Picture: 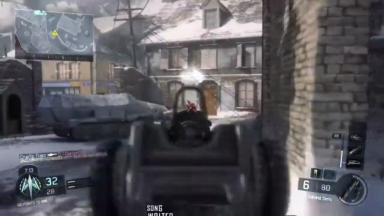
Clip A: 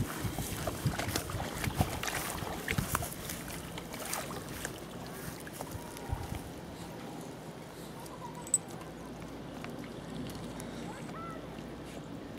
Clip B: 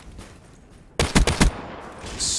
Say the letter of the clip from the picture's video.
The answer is B